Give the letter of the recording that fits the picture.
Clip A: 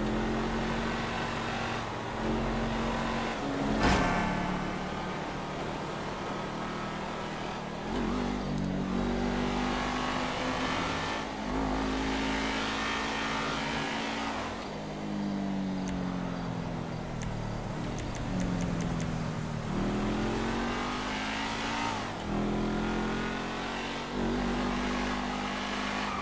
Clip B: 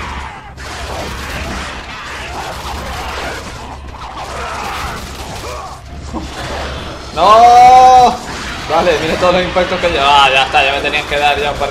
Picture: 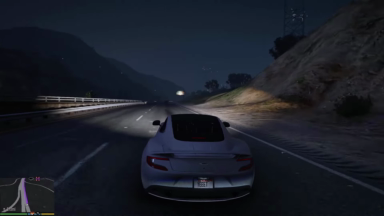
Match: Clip A